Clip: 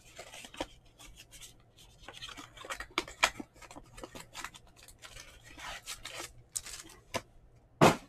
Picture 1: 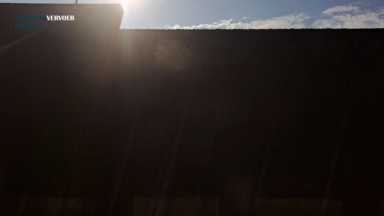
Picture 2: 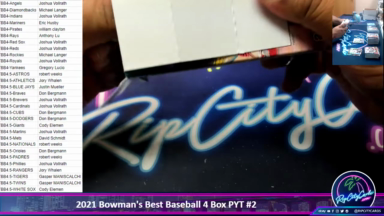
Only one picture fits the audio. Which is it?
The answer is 2